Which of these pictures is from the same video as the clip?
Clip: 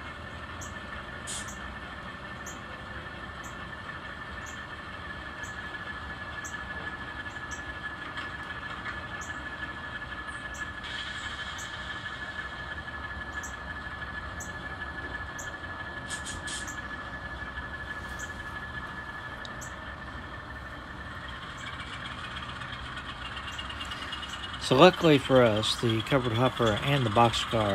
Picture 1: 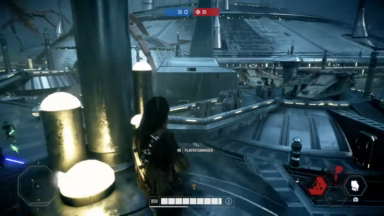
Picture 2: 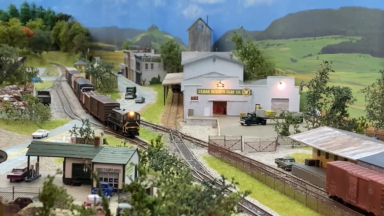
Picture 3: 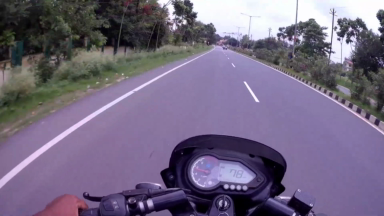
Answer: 2